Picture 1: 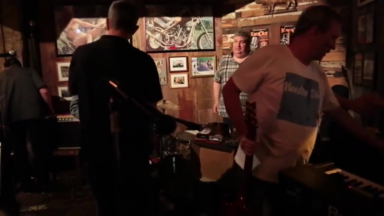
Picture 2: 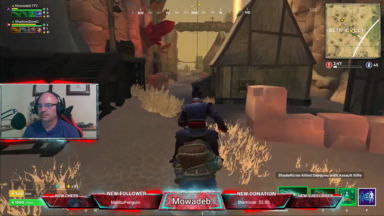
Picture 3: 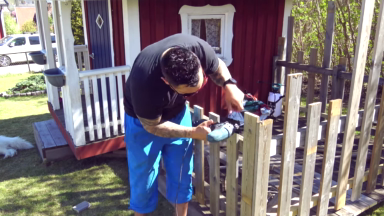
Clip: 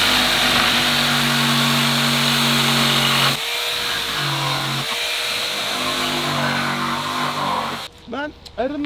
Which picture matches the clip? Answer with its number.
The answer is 3